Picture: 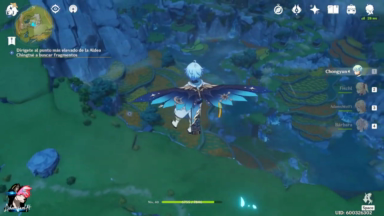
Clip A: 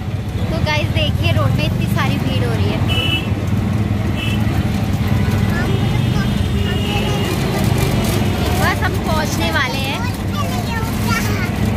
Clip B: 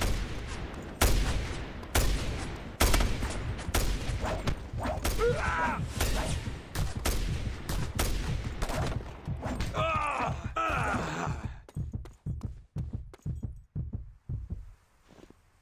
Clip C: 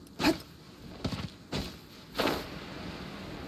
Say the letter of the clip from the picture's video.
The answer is C